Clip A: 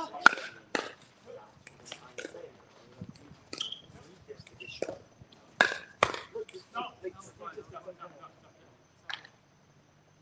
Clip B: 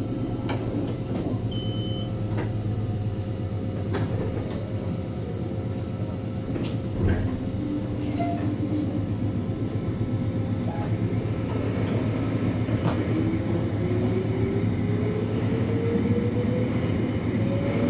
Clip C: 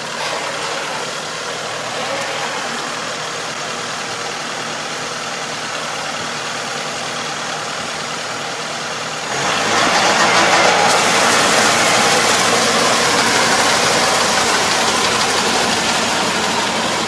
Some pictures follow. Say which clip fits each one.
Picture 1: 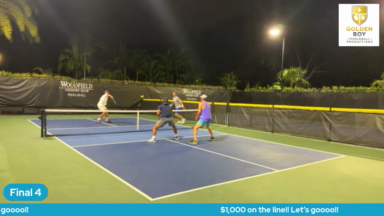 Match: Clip A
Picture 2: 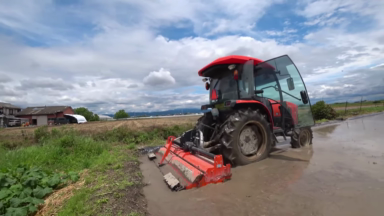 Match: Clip C